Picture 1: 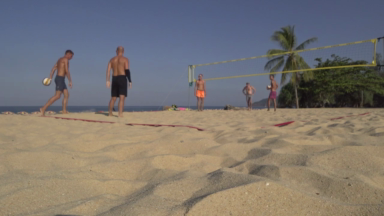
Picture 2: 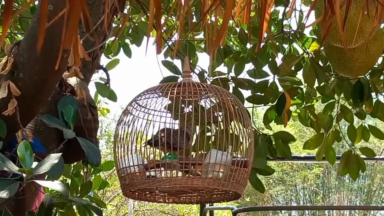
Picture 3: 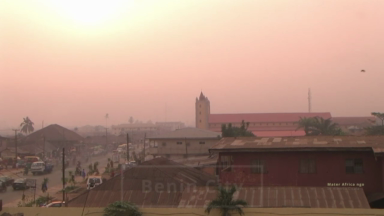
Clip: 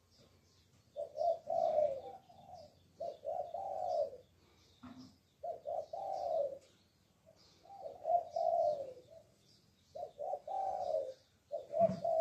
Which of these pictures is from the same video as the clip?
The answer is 2